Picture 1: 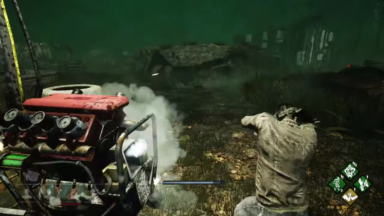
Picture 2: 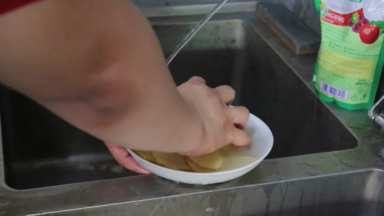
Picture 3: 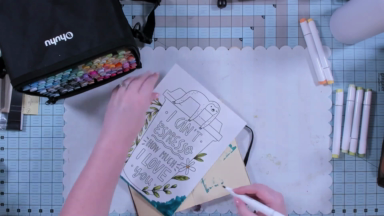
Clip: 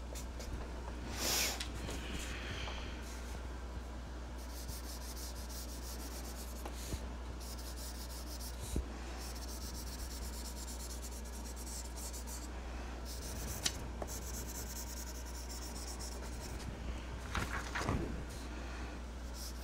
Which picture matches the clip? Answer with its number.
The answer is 3